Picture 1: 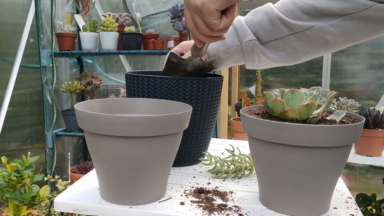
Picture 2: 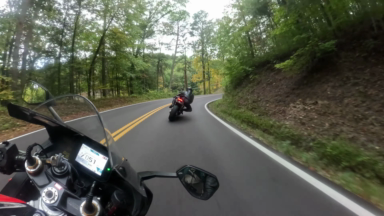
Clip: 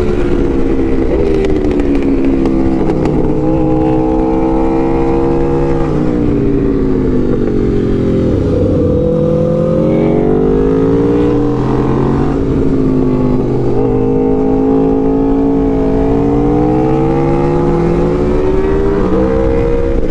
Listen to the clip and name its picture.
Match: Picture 2